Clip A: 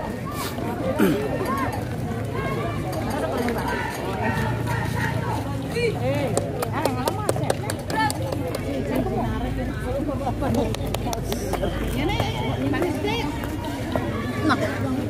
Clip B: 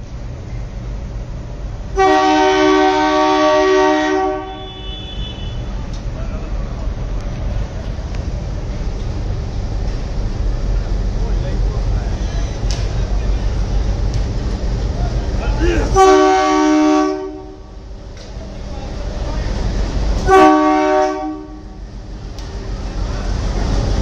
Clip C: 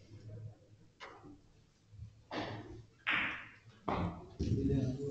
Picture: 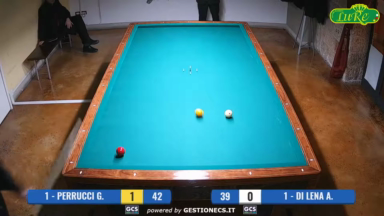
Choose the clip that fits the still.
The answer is C